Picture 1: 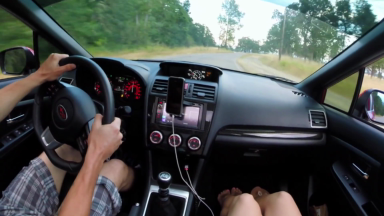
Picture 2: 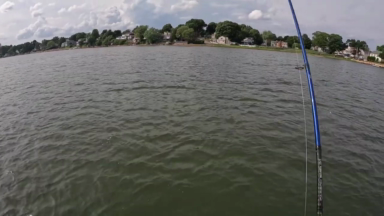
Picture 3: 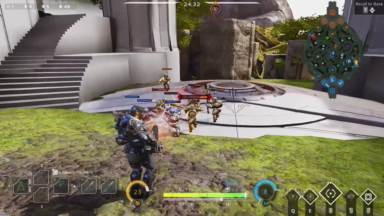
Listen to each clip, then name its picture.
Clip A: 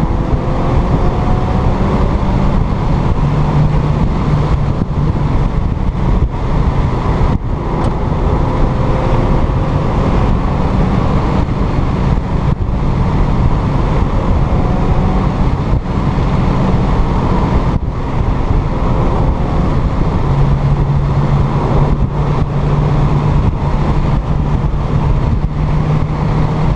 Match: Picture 1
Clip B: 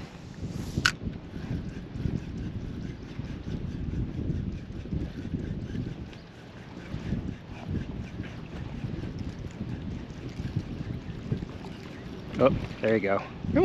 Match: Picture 2